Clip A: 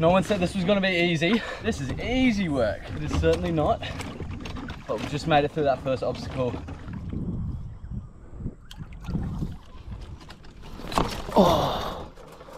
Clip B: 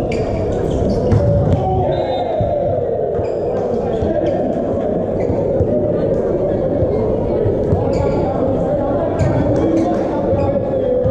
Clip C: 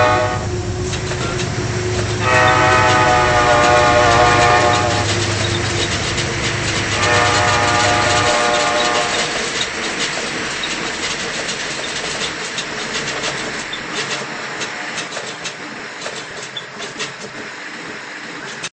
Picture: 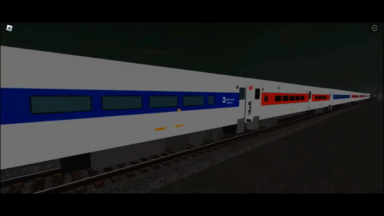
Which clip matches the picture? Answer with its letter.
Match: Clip C